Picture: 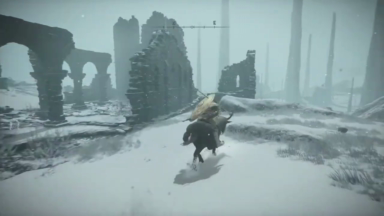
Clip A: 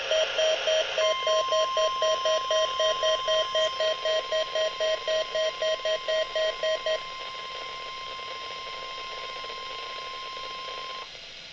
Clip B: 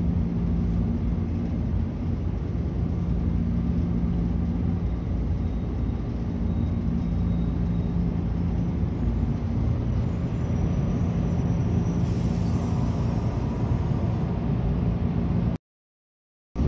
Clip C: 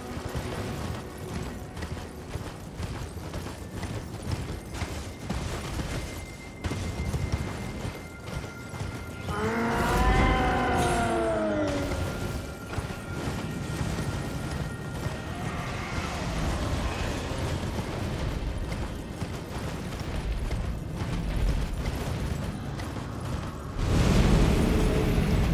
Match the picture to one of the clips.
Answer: C